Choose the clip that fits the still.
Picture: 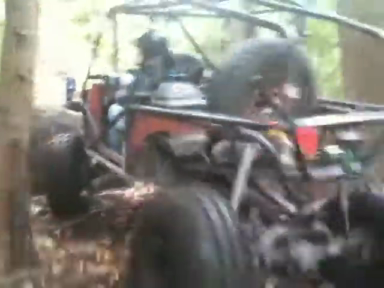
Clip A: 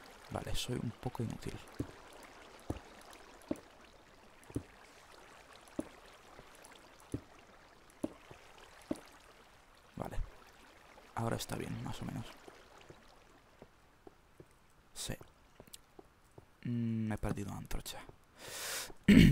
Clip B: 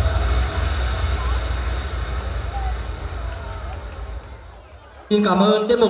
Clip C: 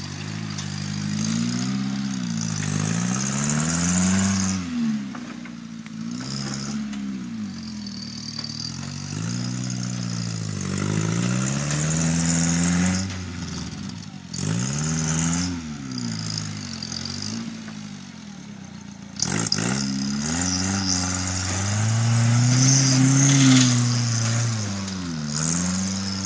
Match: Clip C